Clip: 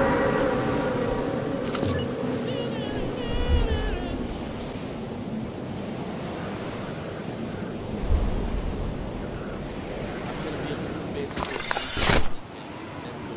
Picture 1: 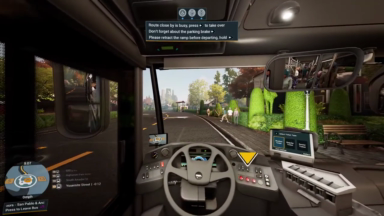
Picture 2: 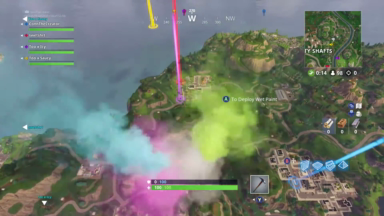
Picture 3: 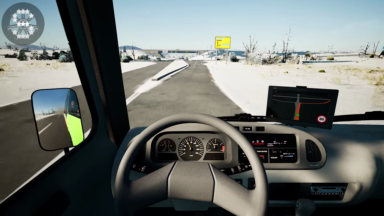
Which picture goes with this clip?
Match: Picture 2